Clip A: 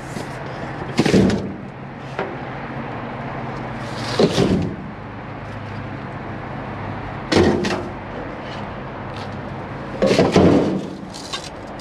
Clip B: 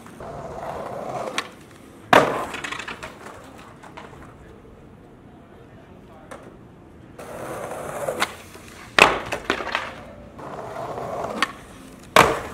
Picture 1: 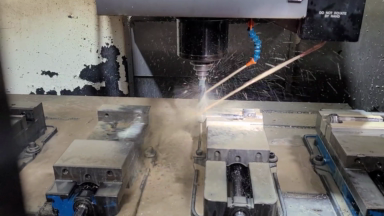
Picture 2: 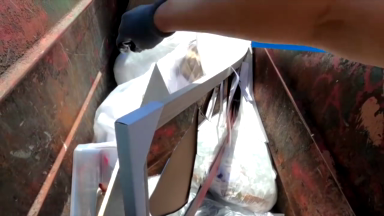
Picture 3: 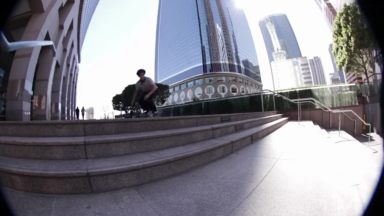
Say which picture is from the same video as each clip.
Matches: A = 2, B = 3